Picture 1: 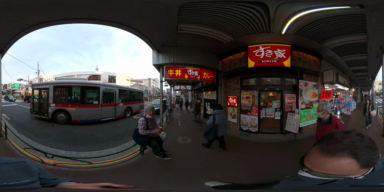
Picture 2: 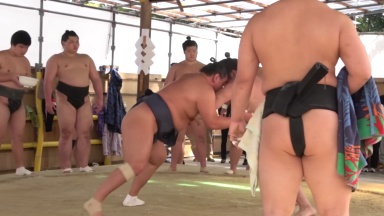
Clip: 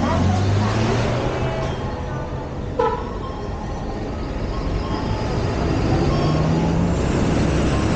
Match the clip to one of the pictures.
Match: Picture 1